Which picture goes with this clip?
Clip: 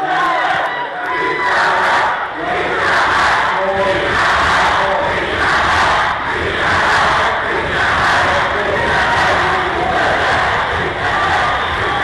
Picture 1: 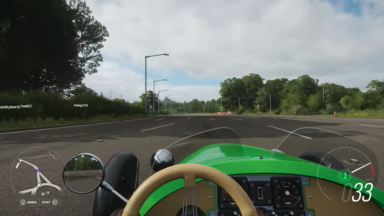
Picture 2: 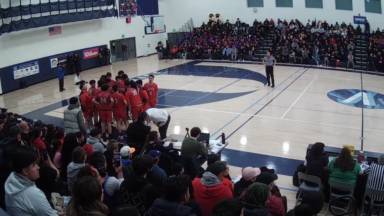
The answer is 2